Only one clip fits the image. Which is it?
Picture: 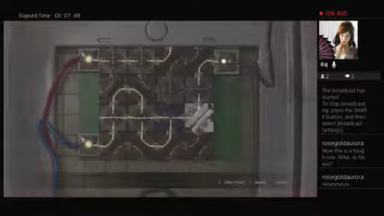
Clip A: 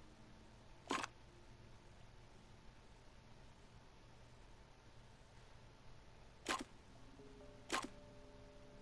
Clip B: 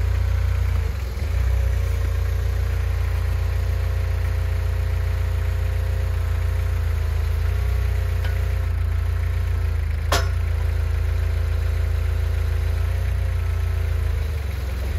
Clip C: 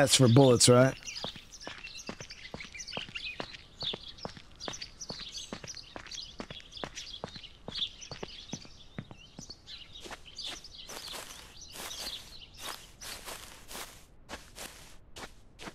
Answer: A